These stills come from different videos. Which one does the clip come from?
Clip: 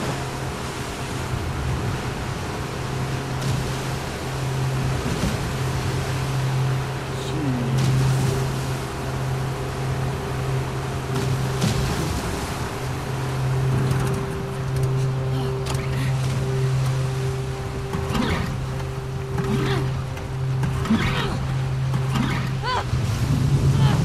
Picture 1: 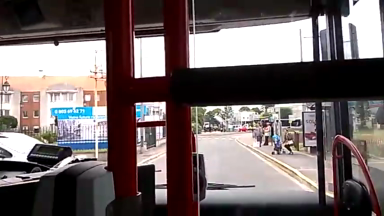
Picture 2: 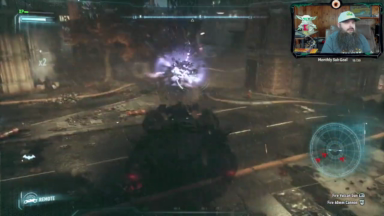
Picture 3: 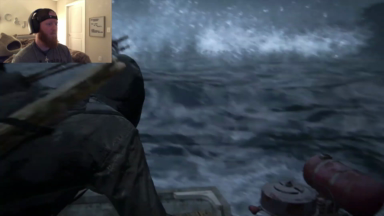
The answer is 3